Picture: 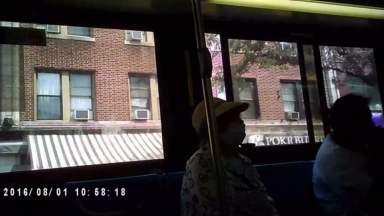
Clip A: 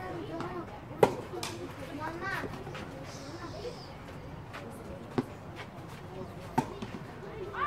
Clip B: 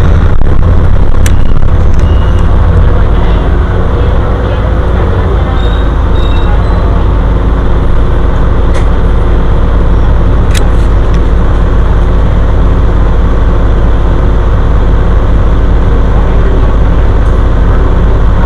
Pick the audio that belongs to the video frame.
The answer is B